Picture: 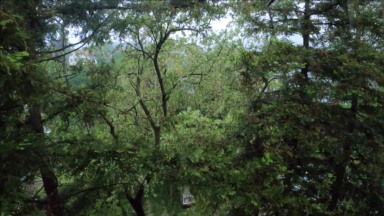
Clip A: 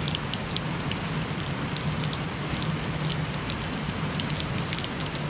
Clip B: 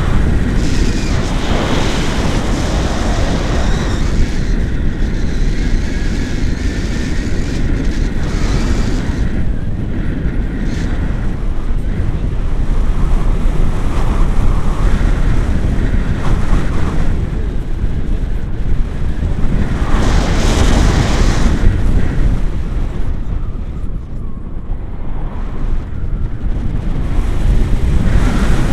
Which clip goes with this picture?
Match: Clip A